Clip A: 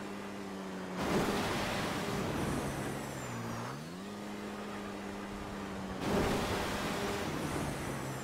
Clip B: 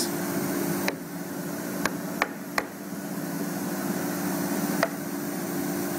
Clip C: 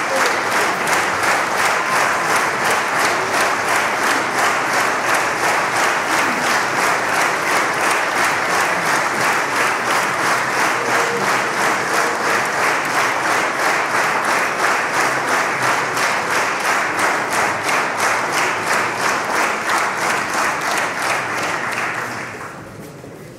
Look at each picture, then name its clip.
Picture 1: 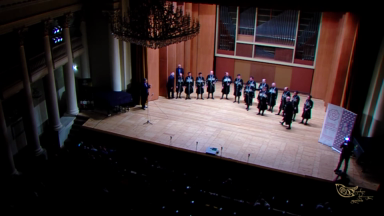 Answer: C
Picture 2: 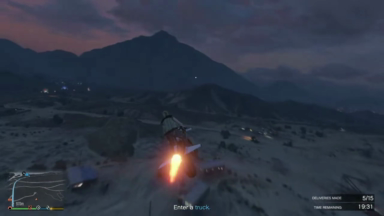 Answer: A